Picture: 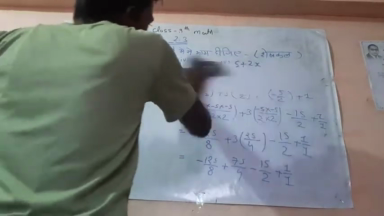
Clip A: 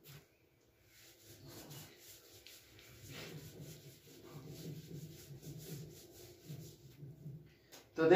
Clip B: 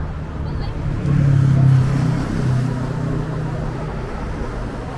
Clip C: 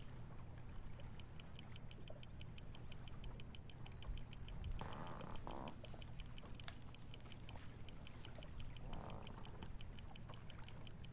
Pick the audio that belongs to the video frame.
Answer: A